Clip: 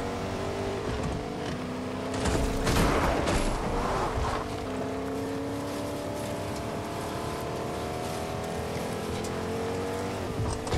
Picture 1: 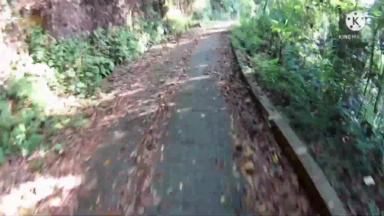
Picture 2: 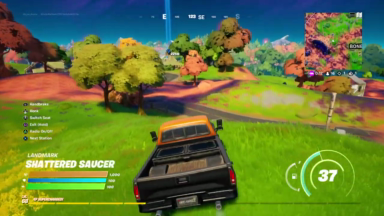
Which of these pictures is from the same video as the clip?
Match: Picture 2